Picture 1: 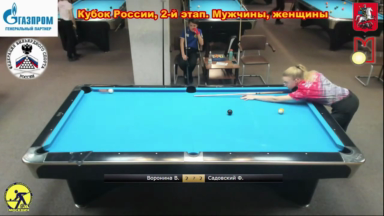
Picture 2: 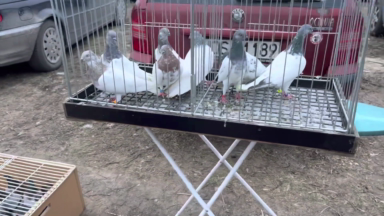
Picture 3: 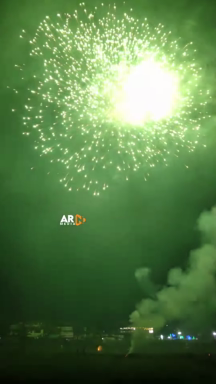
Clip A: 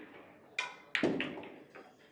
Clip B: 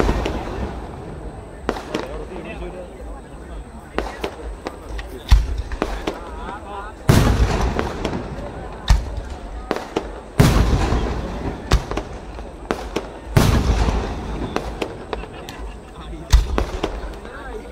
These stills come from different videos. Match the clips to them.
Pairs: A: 1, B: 3